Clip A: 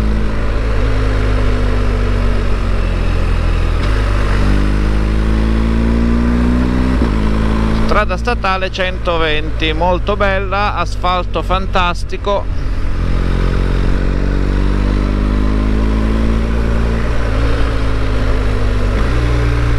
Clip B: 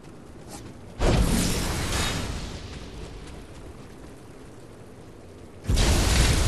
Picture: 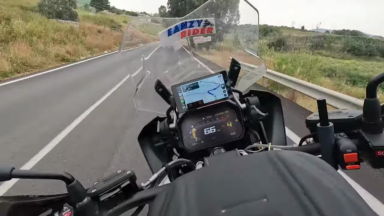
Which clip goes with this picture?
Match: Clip A